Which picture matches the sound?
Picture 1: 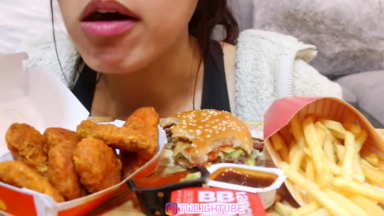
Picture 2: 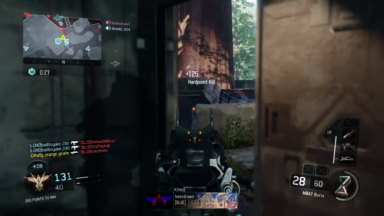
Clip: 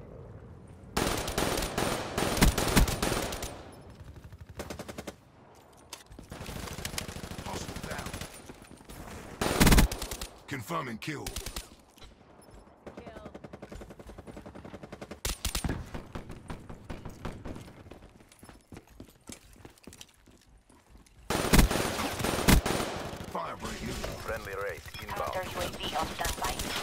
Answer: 2